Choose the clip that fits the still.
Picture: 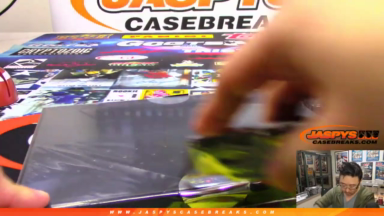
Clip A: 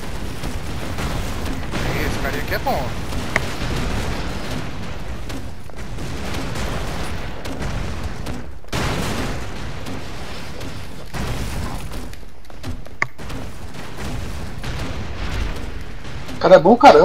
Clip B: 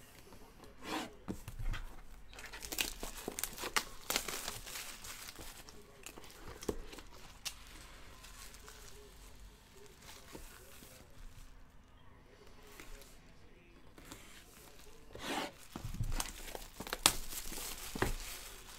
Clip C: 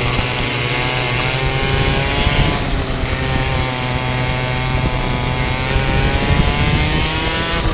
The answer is B